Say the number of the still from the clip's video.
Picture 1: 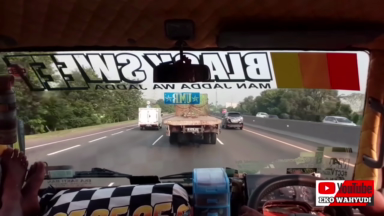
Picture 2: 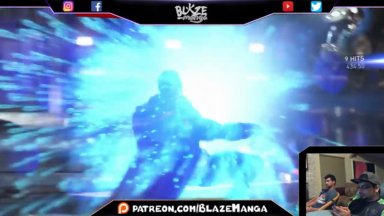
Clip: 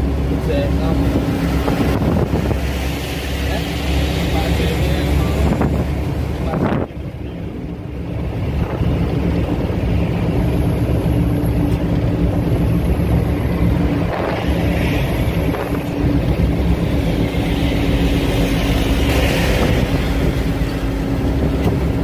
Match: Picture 1